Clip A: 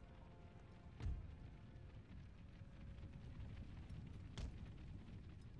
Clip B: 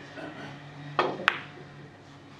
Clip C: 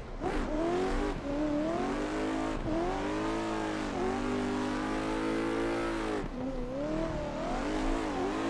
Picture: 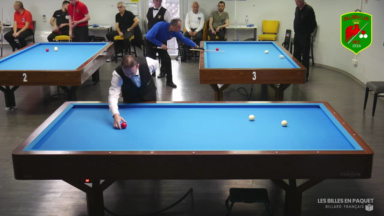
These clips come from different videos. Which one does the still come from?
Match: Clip B